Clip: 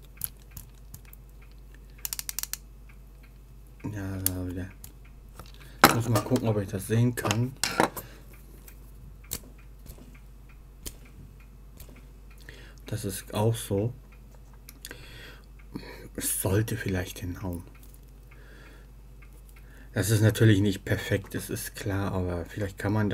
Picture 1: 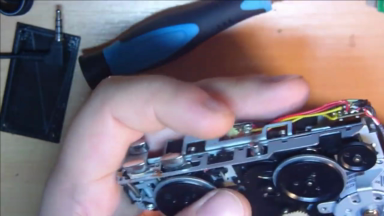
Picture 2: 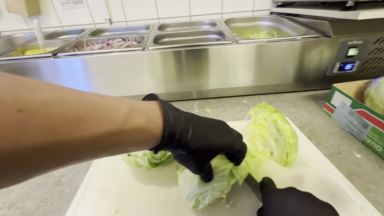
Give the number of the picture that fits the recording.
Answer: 1